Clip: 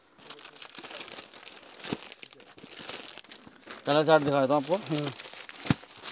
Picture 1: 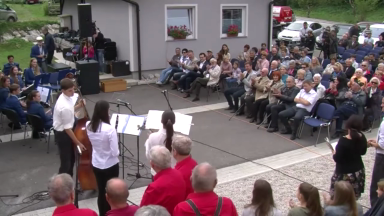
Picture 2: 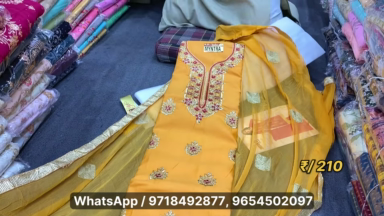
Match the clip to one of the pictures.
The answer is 2